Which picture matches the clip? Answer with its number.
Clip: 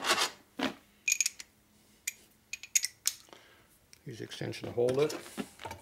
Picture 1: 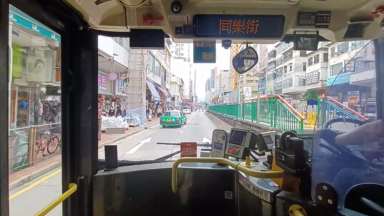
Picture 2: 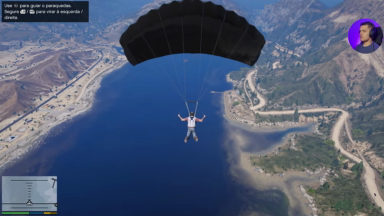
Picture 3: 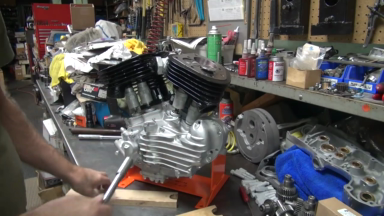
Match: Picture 3